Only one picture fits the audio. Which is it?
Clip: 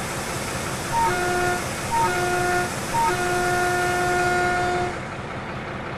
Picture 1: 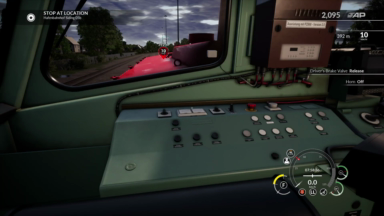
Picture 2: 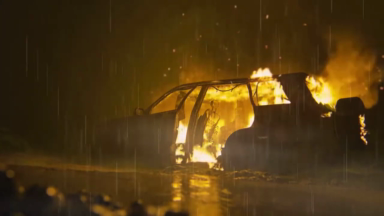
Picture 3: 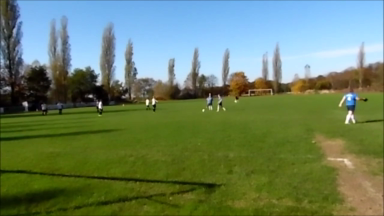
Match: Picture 1